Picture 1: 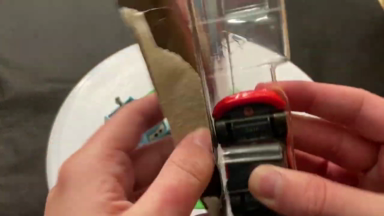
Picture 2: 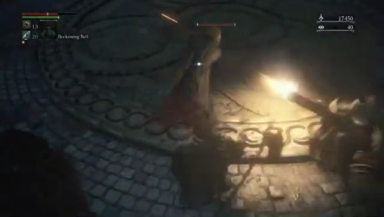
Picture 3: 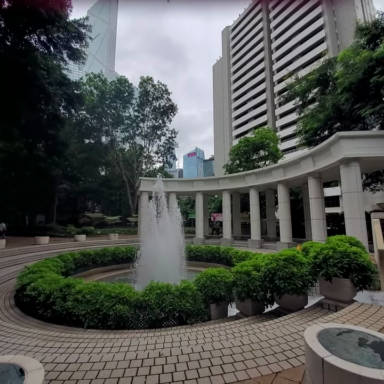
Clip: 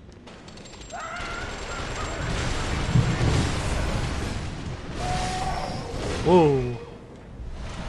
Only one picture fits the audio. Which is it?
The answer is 2